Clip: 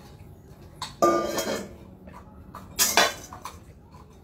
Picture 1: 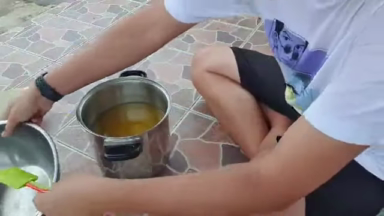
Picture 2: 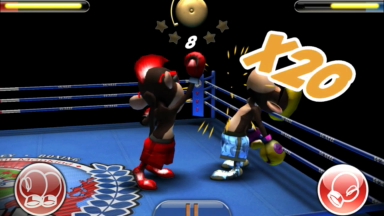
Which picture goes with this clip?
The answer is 1